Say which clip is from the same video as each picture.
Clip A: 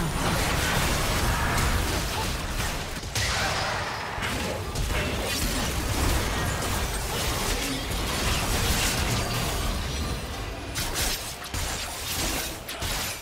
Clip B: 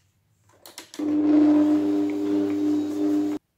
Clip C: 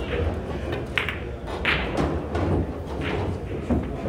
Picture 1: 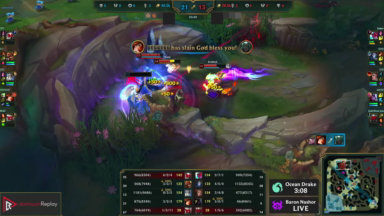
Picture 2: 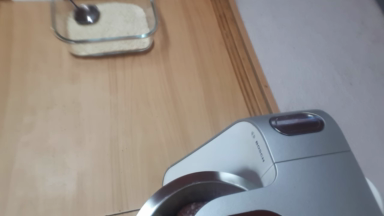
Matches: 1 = A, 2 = B